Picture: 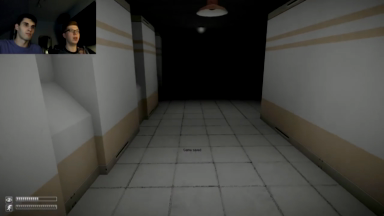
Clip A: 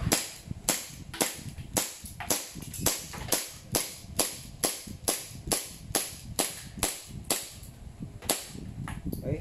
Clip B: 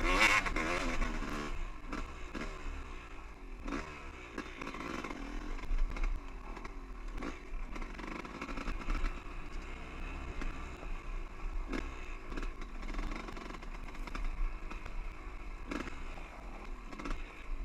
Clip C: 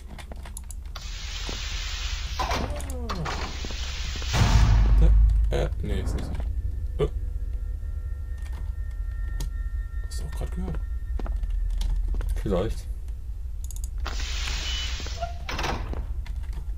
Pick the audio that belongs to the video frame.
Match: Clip C